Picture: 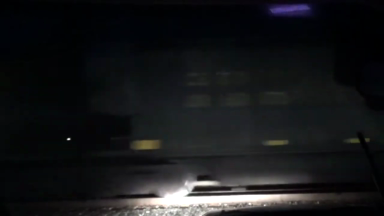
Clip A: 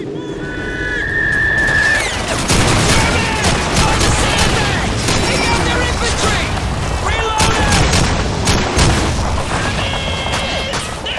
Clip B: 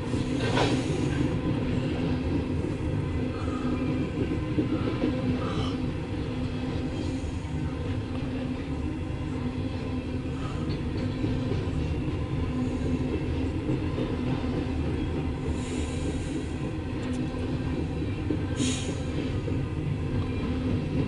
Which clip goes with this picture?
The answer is B